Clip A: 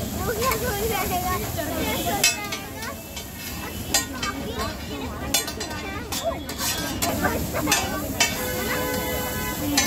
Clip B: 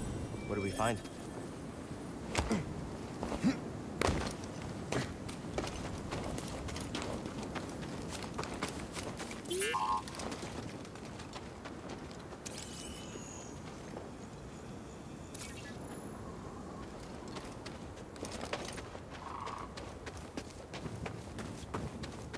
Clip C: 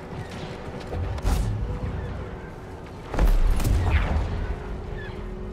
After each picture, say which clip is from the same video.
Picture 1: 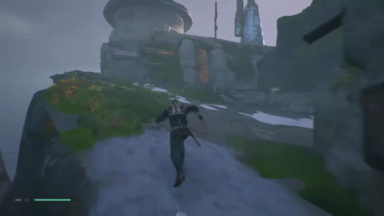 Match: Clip B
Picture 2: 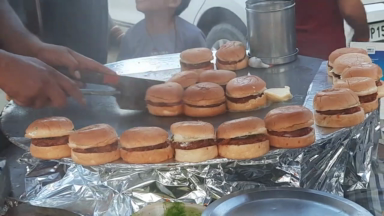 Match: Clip A